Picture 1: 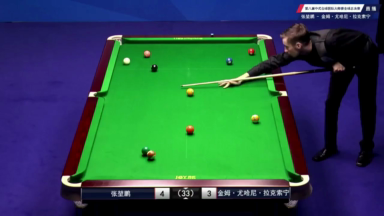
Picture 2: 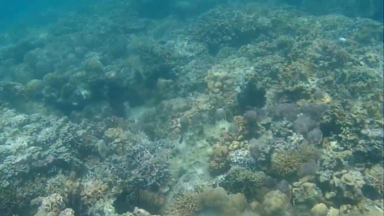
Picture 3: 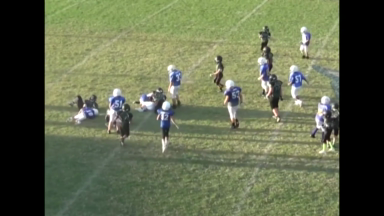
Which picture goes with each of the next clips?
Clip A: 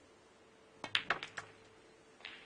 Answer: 1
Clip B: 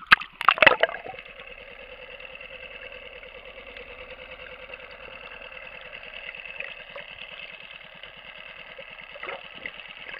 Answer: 2